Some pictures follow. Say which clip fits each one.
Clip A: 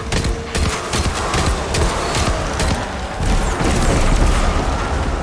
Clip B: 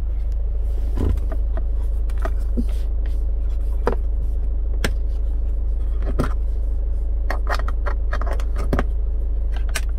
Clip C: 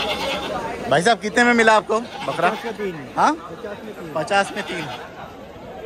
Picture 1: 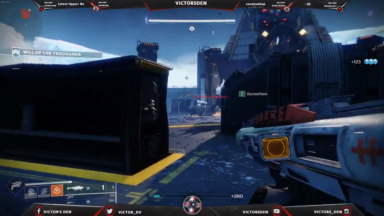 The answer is A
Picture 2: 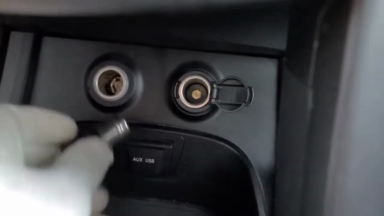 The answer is B